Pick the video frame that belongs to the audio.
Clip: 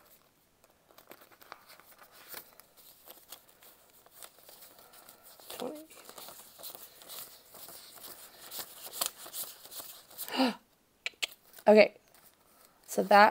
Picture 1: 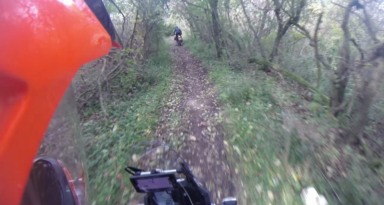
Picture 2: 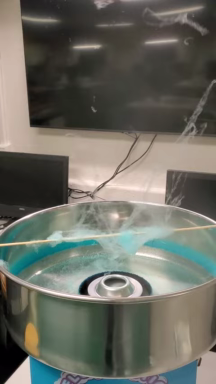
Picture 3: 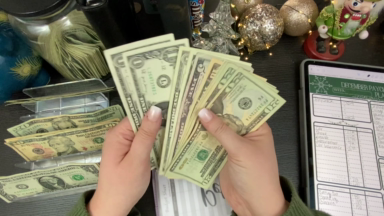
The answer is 3